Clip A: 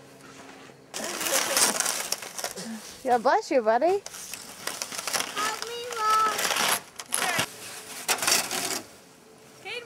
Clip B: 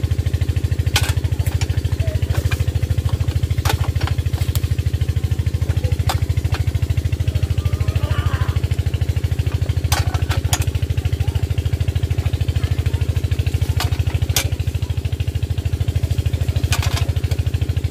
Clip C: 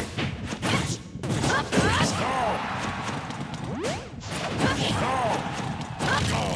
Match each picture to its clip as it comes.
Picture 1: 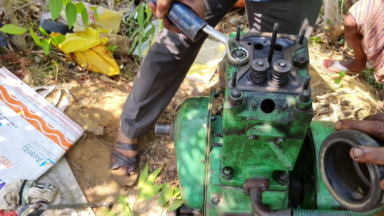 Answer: B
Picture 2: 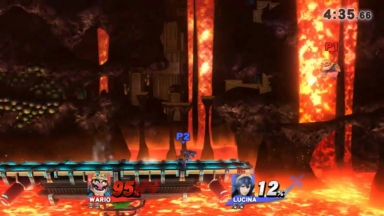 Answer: C